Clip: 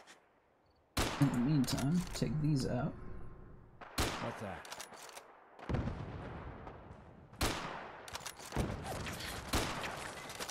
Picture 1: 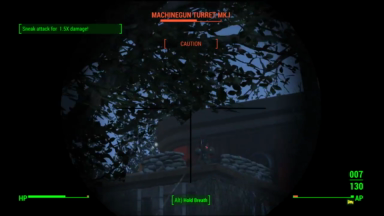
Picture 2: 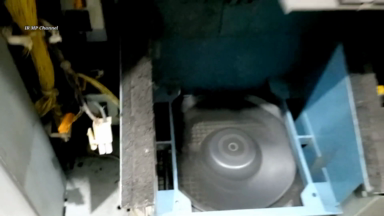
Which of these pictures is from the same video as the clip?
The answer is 1